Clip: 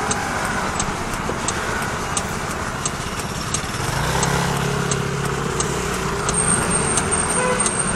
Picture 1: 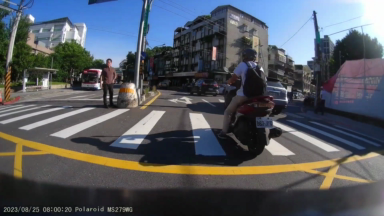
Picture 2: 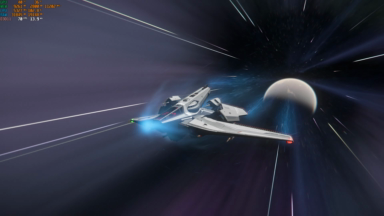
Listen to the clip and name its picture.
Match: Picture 1